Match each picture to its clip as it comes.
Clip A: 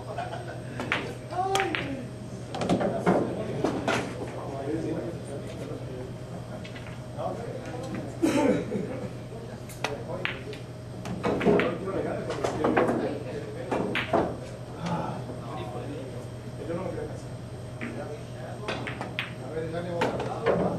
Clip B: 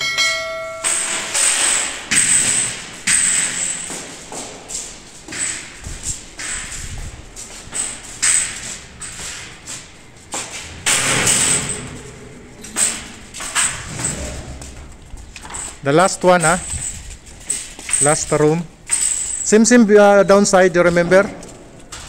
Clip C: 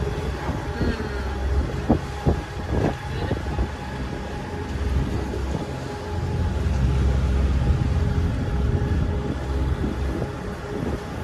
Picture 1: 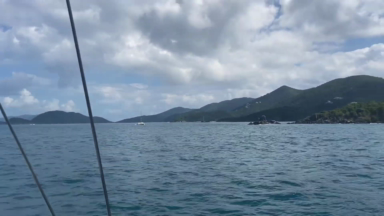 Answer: C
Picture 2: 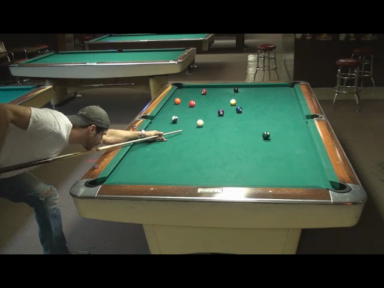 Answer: A